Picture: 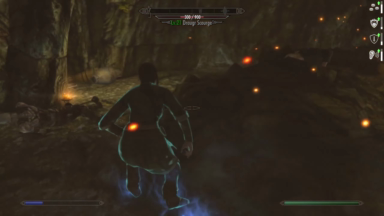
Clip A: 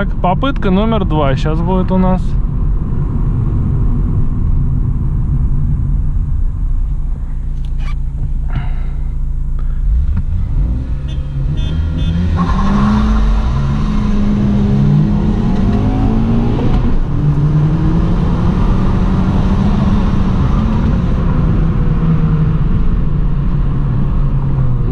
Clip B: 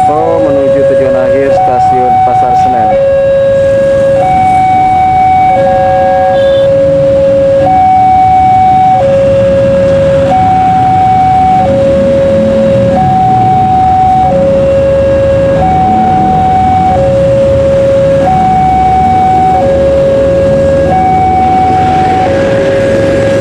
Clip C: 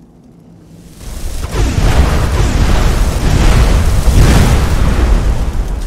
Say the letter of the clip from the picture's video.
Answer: C